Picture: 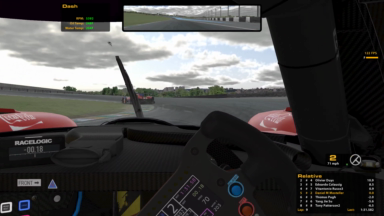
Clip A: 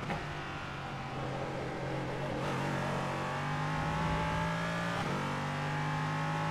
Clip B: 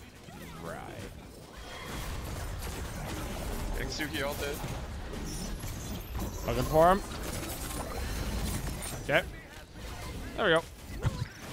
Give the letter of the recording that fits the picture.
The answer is A